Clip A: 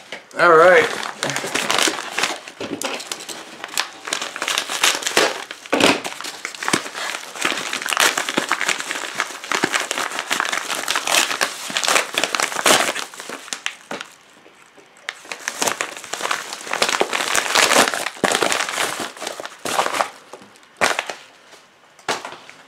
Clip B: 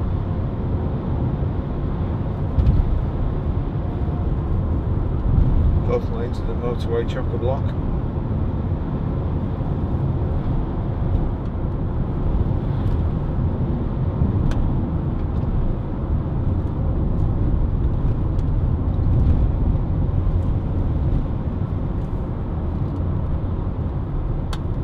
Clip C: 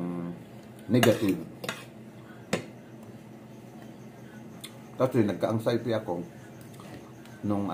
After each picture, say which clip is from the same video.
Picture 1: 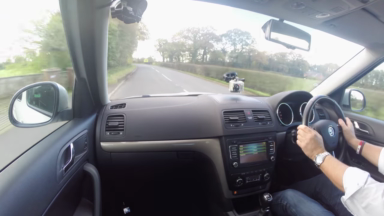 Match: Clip B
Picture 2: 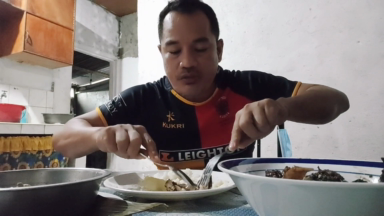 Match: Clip C